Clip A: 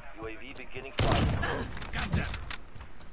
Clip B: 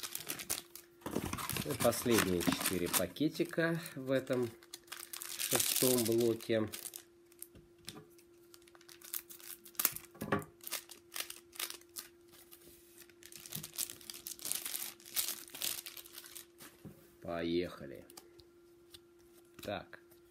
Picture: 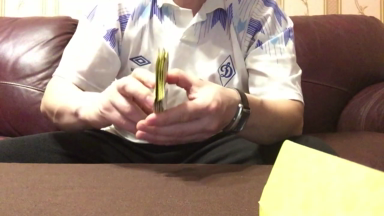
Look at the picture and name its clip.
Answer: B